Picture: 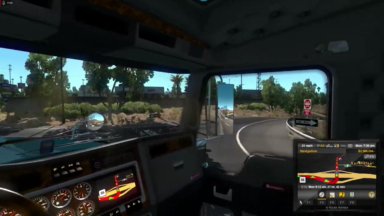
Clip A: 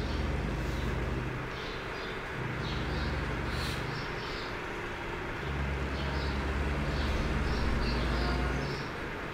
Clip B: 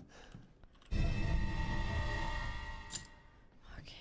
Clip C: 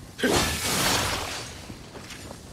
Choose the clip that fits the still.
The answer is A